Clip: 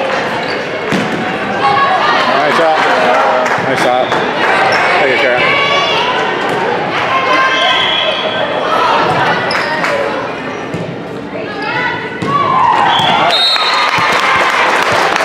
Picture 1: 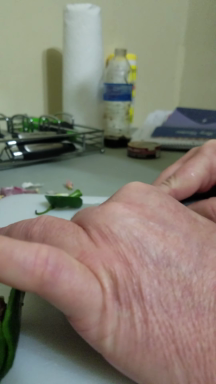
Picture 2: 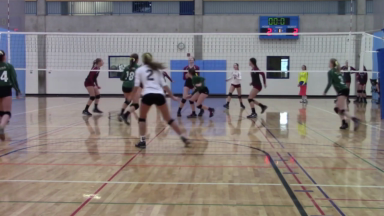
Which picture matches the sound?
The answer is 2